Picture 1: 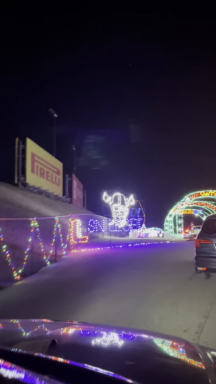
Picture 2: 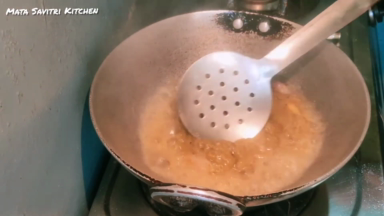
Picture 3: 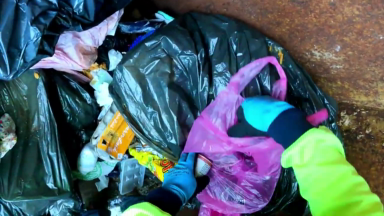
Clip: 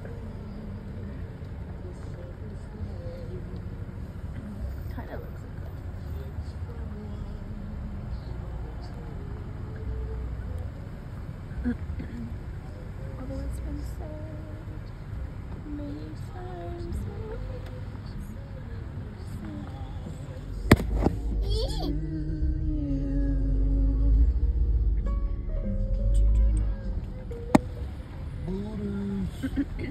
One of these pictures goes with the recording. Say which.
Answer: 1